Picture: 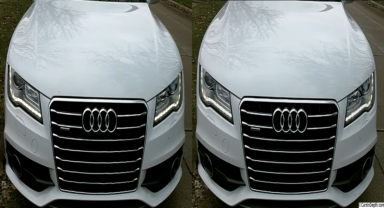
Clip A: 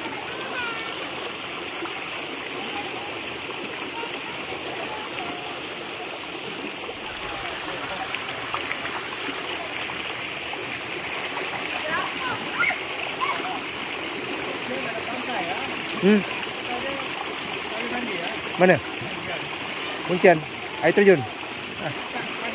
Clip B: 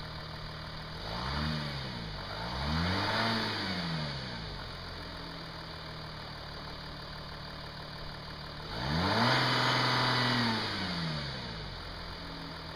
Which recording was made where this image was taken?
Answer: B